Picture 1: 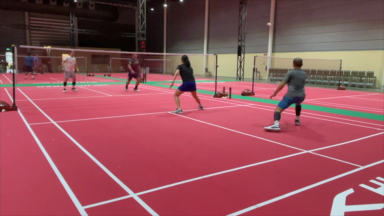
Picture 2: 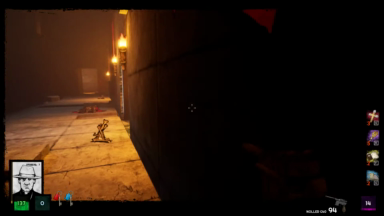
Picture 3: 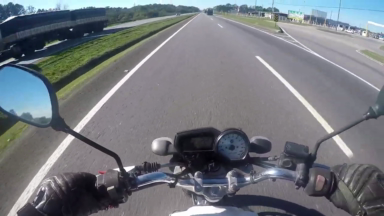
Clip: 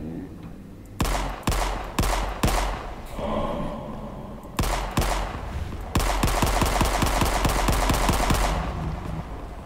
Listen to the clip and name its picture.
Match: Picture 2